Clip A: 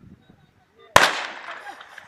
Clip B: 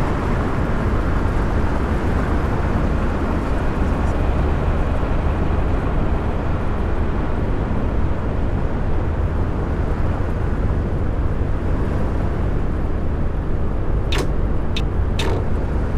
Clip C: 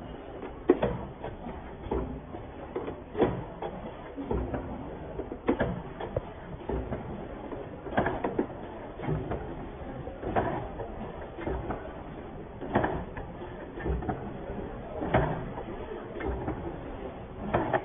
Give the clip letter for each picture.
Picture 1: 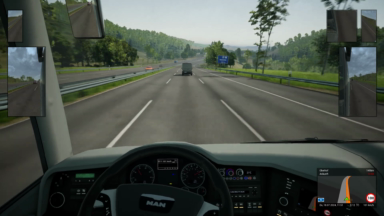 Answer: B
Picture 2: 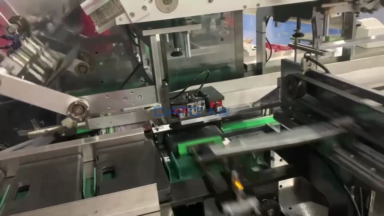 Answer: C